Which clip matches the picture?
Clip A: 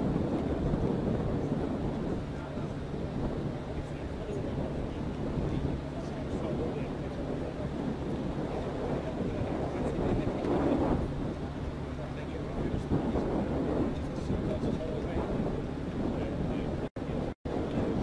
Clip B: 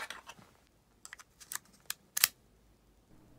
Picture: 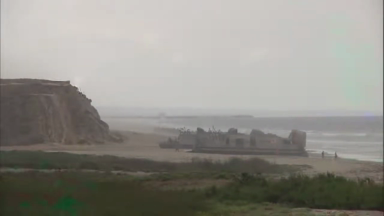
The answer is A